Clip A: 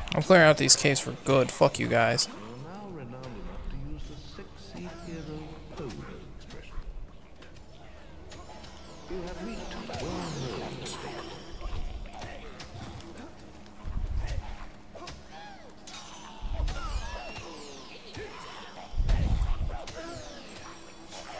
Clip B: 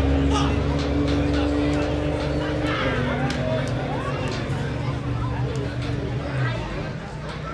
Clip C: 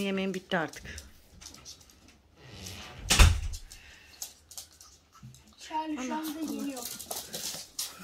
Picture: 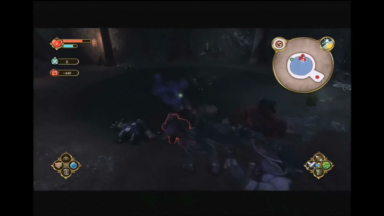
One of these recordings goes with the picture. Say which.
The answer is A